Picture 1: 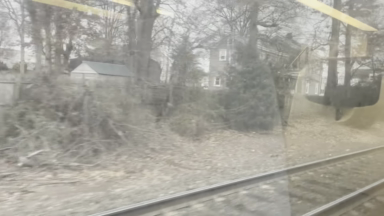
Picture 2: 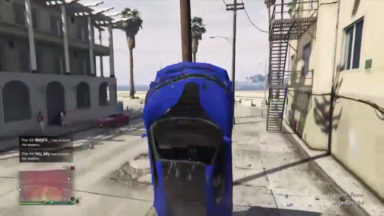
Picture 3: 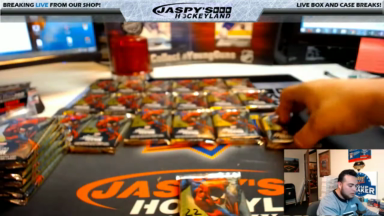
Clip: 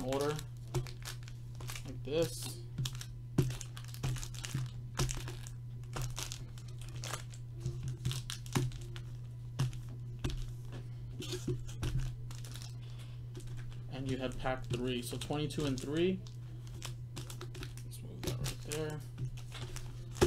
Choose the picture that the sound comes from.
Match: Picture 3